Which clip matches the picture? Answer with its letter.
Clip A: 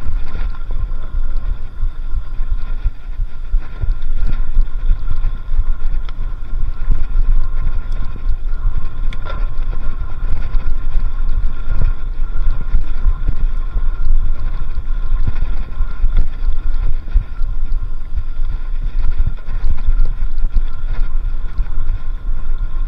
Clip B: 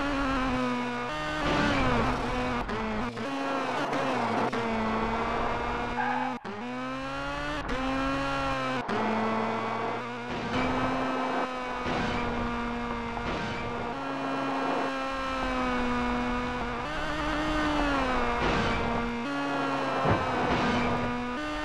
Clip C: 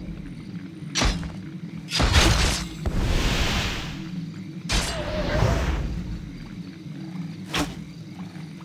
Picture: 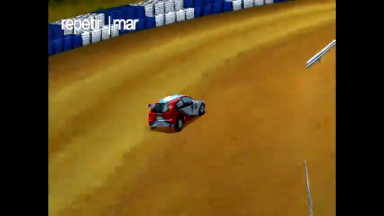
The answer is B